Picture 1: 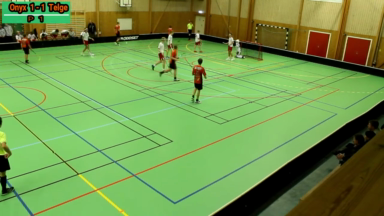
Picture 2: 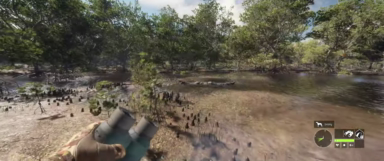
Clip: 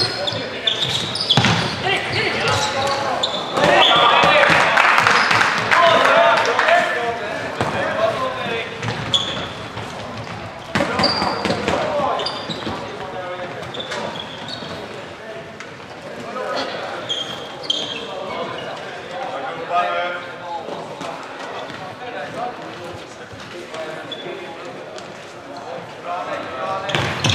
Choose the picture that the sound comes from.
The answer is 1